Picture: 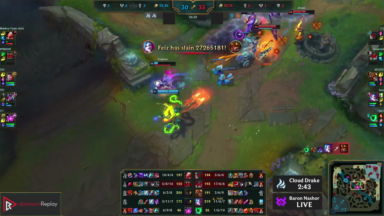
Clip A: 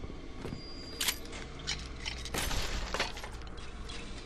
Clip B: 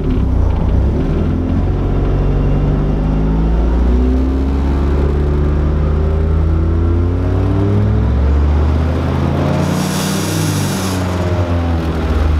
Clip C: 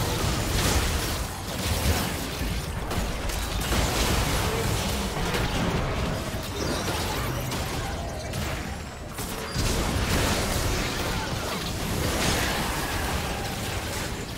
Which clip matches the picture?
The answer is C